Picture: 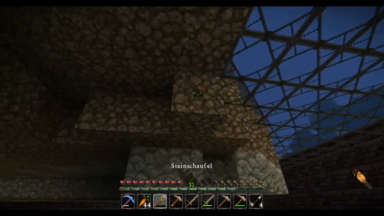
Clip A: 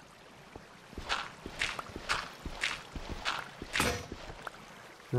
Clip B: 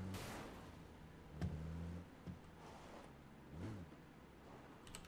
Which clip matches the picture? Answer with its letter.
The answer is A